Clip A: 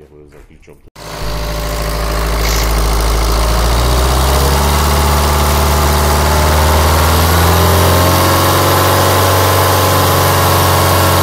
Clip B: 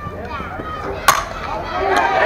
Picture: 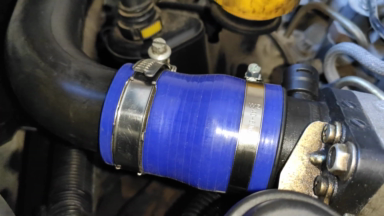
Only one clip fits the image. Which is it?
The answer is A